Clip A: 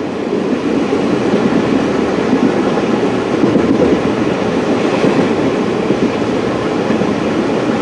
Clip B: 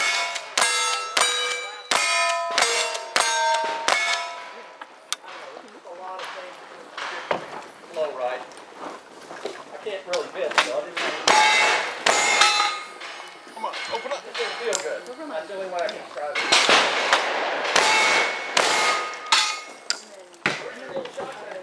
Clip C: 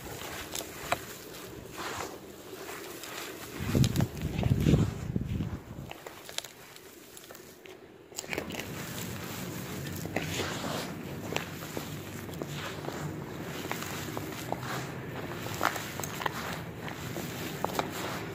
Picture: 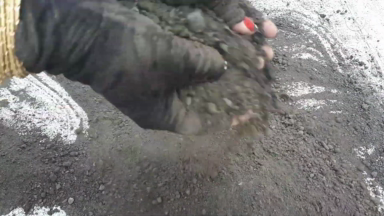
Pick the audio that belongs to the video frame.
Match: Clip C